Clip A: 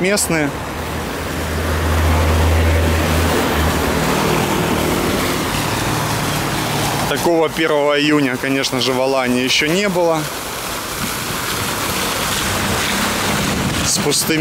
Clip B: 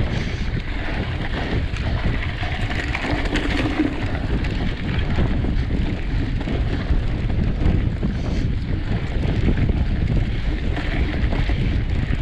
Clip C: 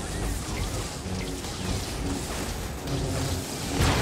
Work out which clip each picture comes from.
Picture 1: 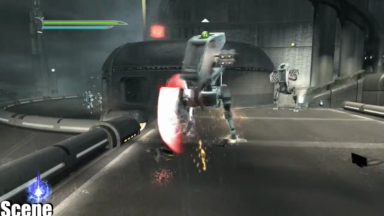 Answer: C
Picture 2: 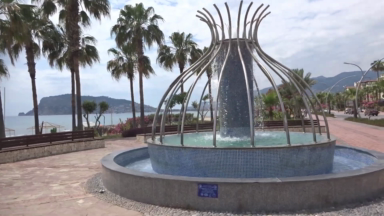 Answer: A